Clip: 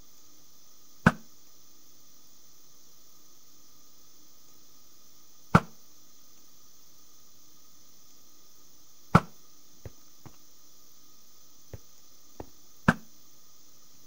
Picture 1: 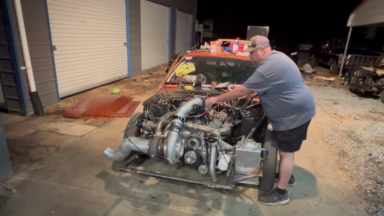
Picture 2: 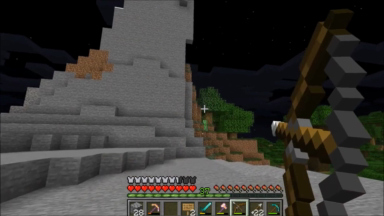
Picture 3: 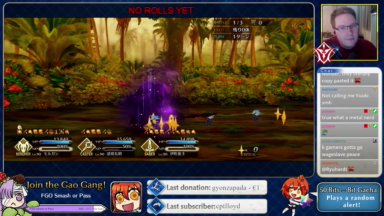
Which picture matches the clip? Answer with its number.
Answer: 2